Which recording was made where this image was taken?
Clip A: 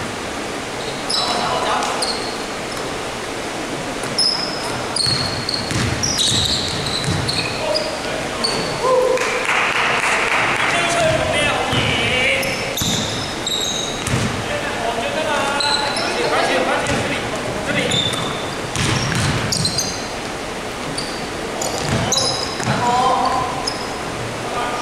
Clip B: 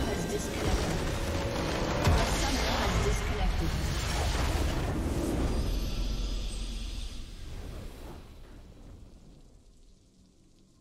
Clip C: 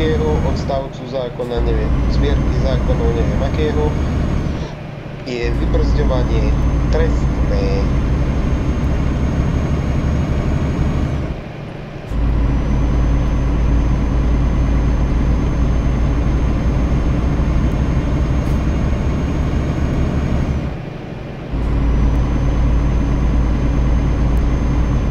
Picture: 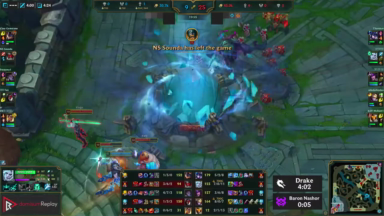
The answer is B